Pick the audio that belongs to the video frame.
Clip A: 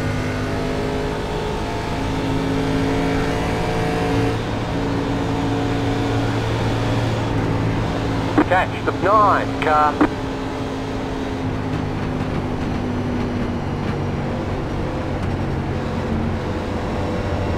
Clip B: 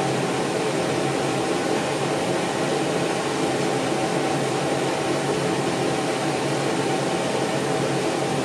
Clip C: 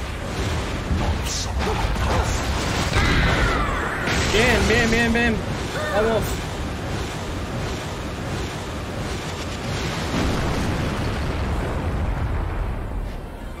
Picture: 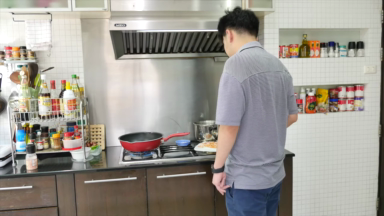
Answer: B